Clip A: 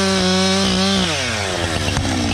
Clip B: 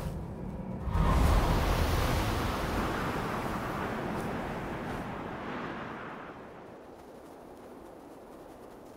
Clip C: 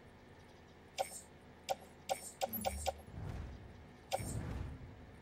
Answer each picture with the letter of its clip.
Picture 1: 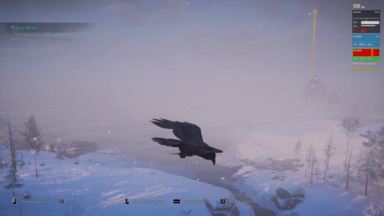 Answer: B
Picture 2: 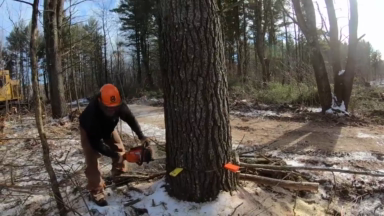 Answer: A